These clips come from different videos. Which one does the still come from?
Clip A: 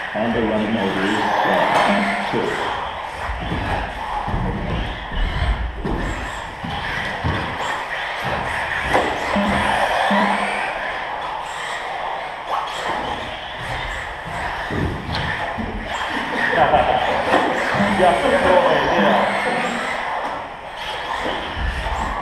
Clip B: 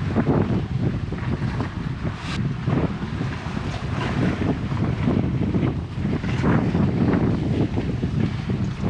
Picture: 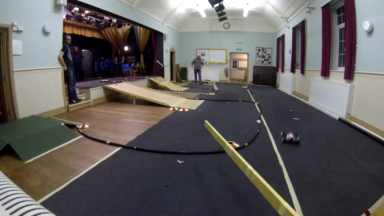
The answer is A